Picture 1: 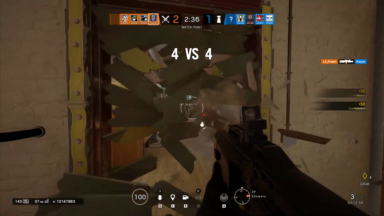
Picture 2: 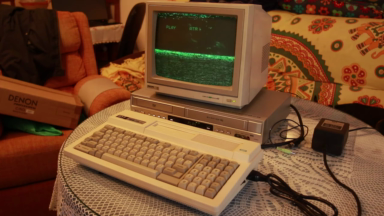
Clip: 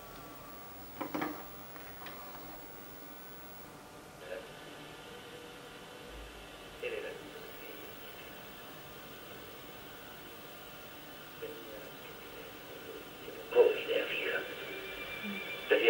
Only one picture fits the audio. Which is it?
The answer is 2